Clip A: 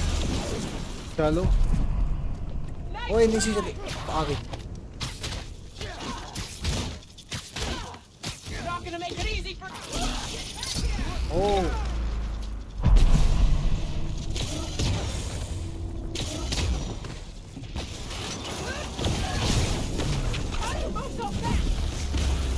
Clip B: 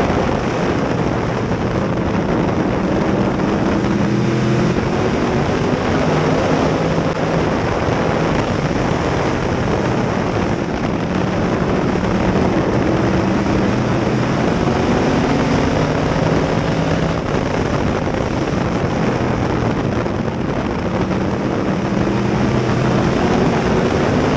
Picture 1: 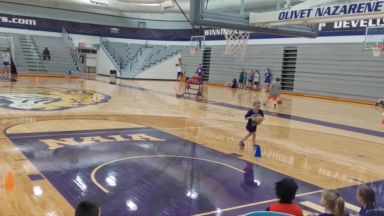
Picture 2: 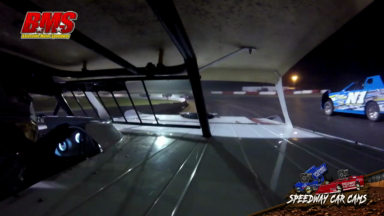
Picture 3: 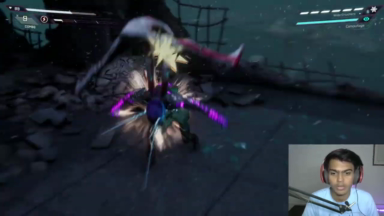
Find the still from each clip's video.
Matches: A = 3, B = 2